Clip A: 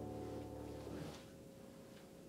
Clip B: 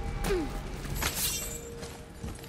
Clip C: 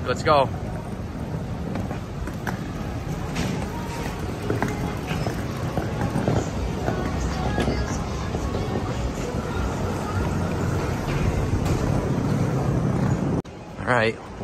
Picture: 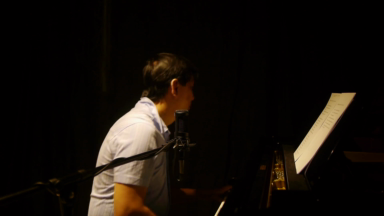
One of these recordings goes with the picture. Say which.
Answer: A